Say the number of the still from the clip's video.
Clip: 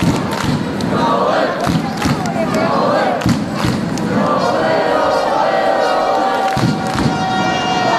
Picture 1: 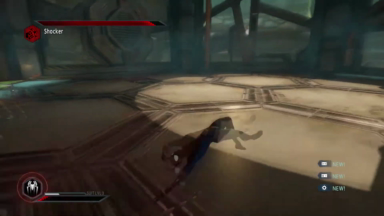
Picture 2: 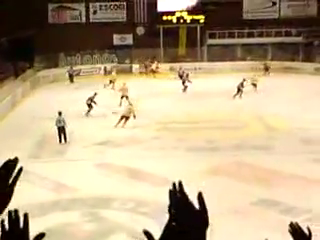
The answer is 2